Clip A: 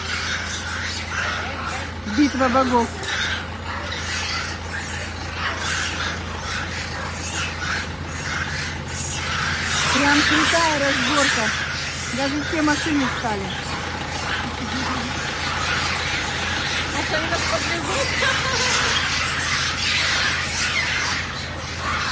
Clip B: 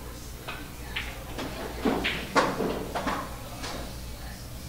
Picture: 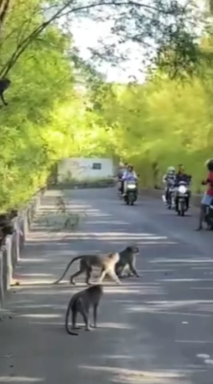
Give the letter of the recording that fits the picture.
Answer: A